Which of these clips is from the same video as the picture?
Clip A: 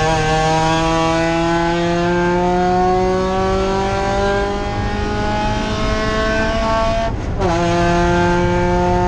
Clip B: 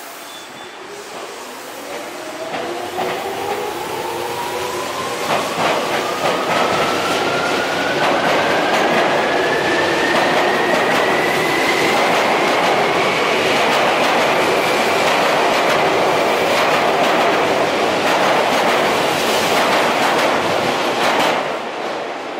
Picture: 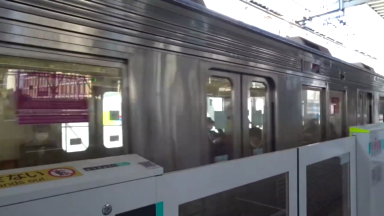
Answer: B